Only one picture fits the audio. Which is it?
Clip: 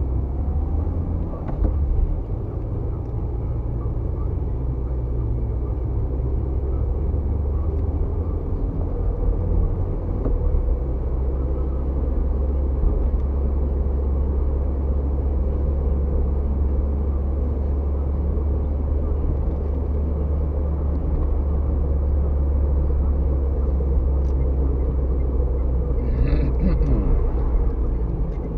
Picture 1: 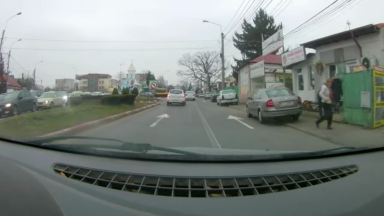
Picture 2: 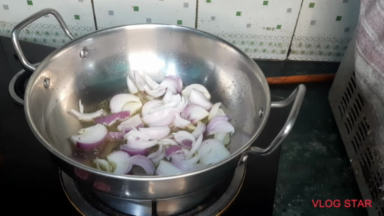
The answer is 1